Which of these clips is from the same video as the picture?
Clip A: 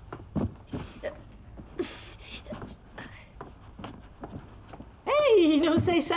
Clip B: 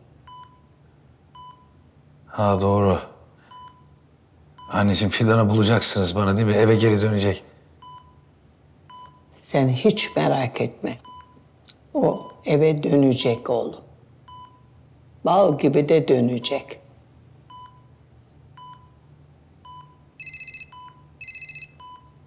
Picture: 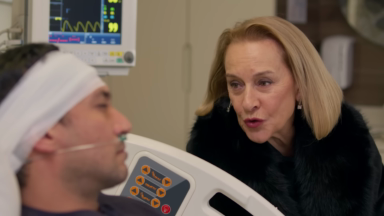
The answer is B